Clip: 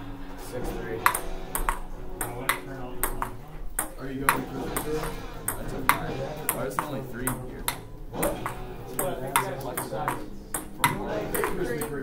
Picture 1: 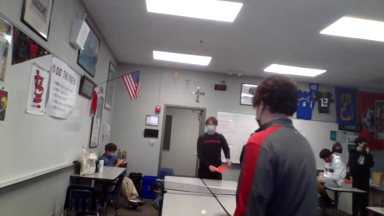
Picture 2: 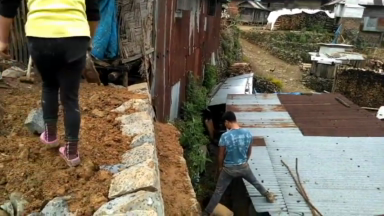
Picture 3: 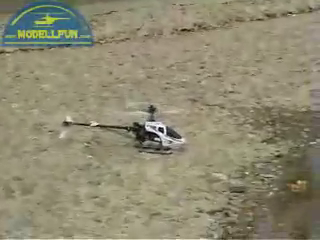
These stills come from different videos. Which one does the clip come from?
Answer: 1